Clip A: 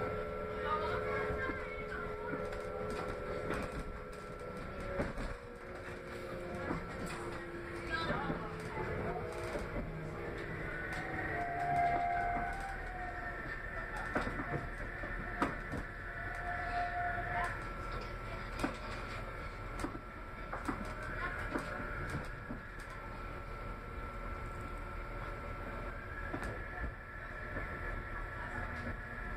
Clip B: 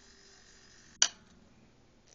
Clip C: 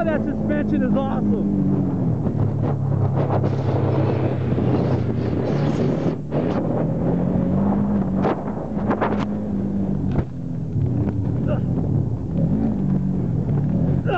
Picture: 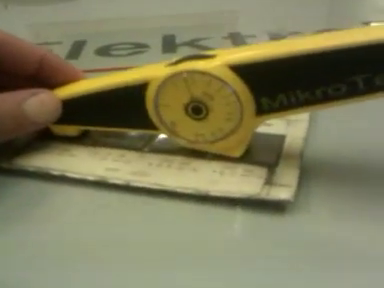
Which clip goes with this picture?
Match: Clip B